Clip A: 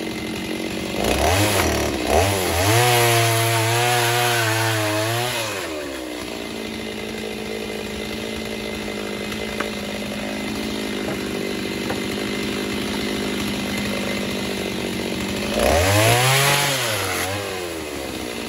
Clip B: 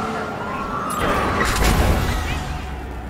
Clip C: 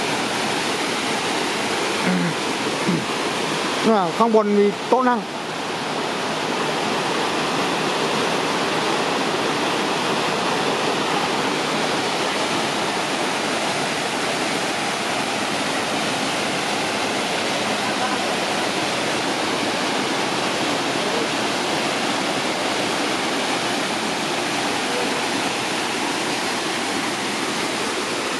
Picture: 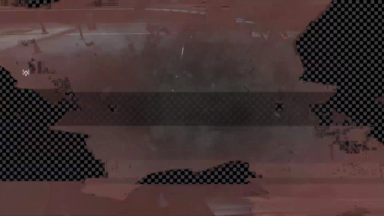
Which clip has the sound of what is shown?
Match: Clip B